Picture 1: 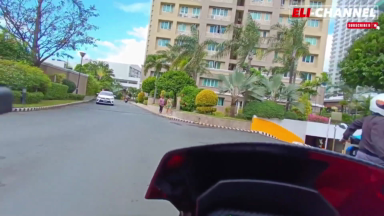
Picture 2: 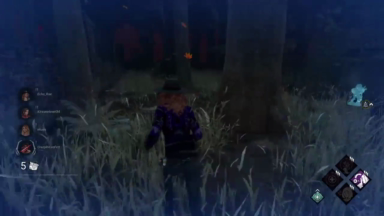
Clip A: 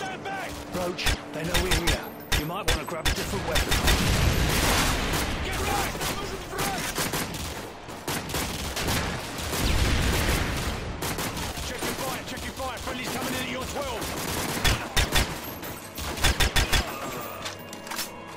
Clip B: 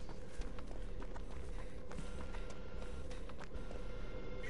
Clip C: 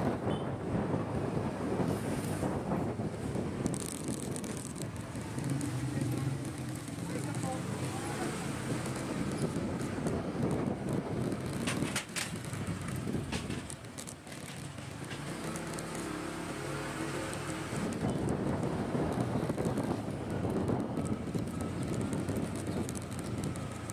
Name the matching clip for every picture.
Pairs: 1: C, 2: B